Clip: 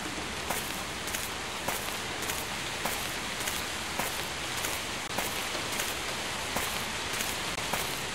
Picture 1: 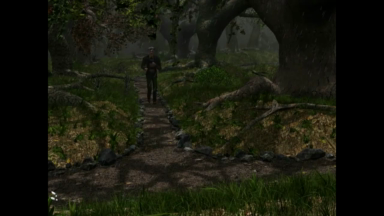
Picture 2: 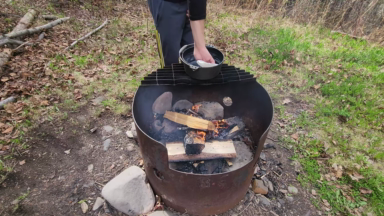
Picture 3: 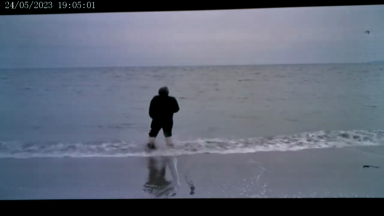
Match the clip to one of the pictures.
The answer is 1